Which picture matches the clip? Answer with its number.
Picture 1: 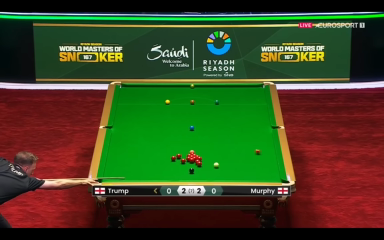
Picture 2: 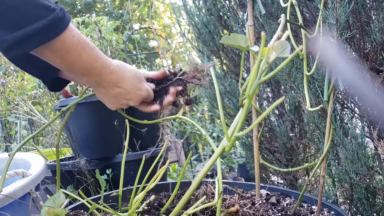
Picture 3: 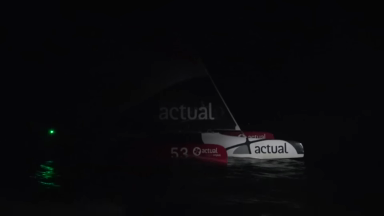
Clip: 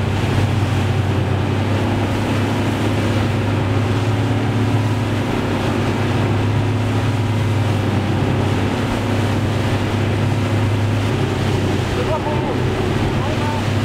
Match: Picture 3